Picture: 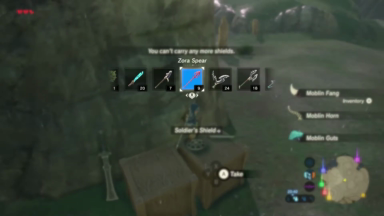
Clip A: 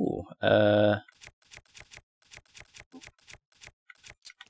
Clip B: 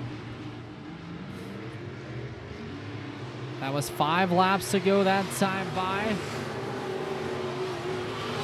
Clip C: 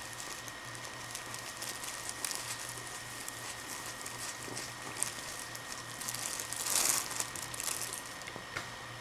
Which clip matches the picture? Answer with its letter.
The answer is A